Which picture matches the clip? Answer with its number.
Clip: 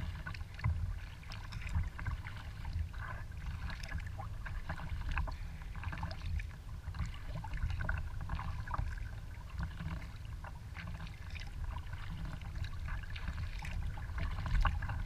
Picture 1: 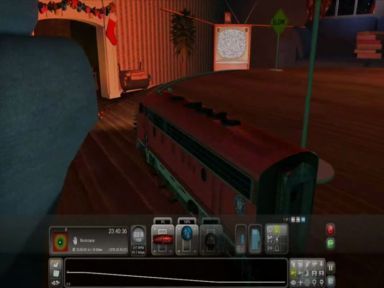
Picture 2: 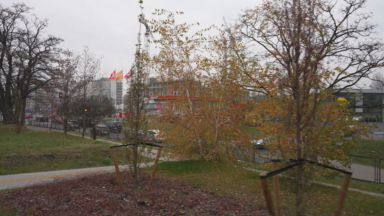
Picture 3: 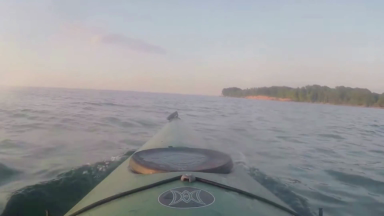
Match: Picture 3